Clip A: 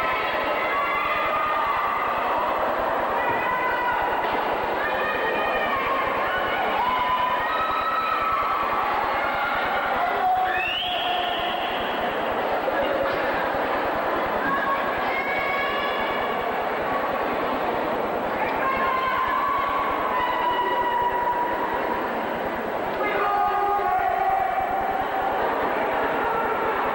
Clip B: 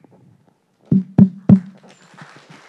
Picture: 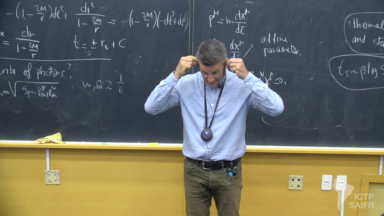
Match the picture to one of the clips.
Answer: B